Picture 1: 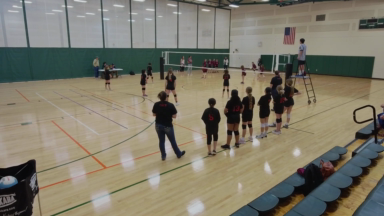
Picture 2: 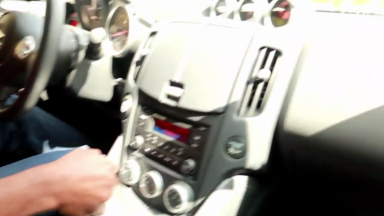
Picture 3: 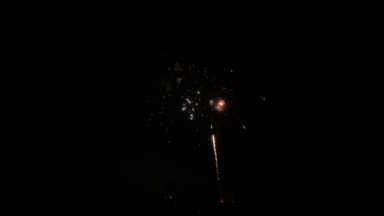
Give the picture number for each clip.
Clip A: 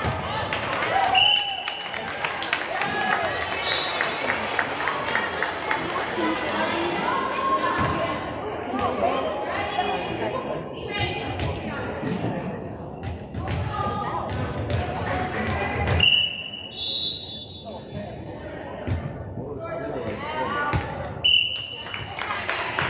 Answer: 1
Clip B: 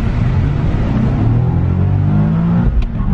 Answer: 2